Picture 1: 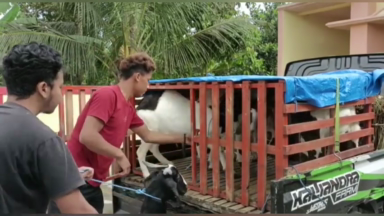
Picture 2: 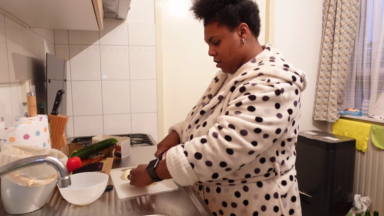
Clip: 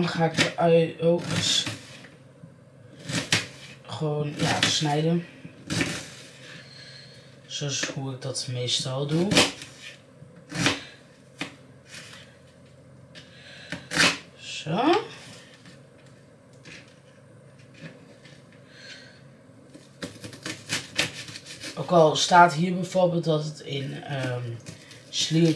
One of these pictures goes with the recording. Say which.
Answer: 2